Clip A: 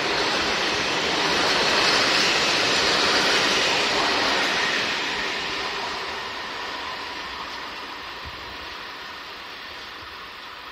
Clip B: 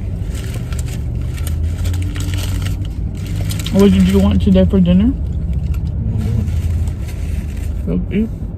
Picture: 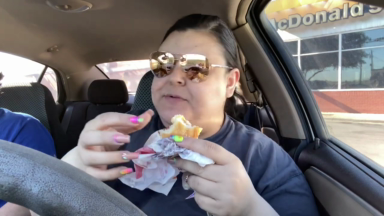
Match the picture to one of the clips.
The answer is B